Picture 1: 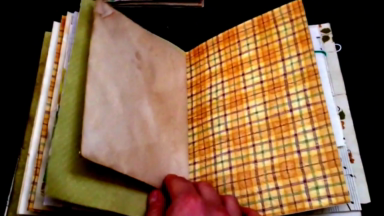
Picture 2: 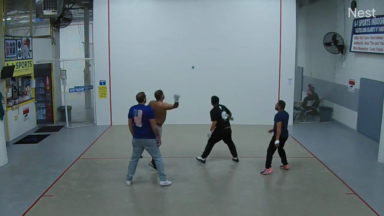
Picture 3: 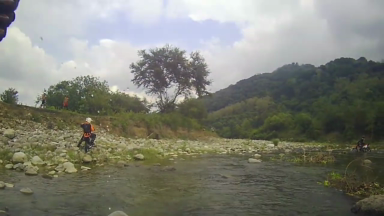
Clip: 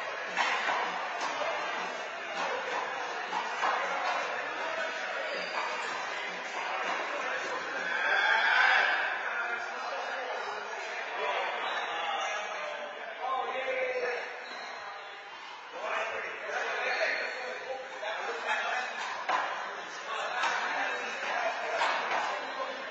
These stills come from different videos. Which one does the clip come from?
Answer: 2